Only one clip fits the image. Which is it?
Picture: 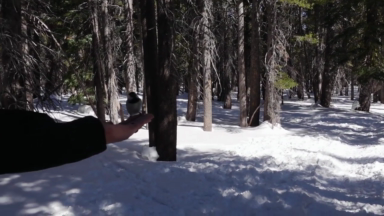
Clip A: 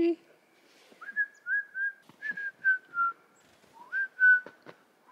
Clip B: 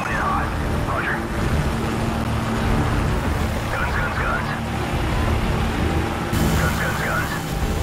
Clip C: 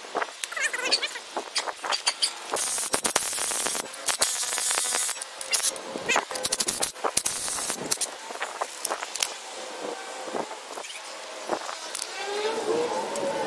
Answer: A